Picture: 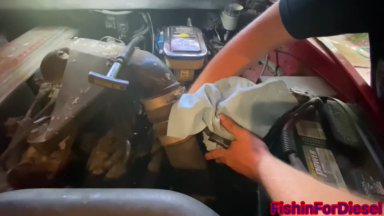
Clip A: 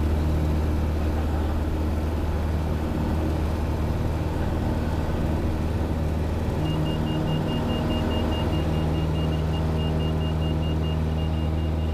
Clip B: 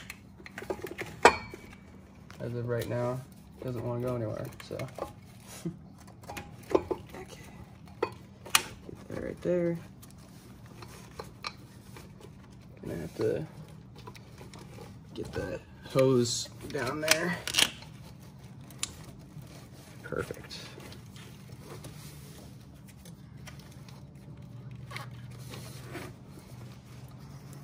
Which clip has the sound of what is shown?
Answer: B